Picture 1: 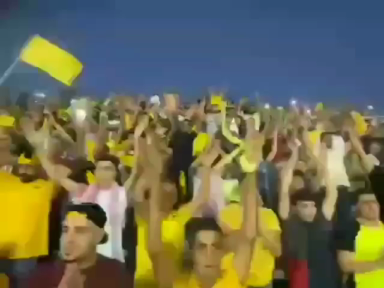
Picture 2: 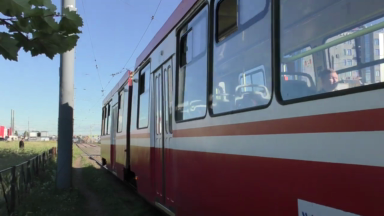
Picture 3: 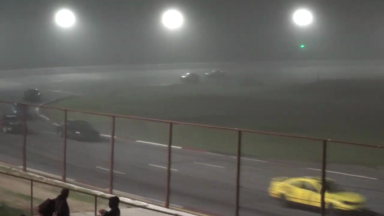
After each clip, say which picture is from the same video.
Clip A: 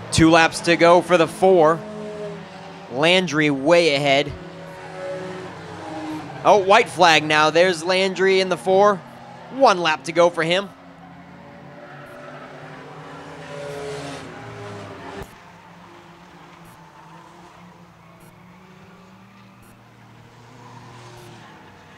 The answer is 3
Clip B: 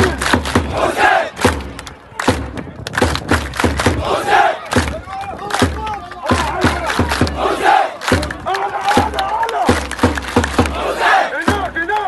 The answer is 1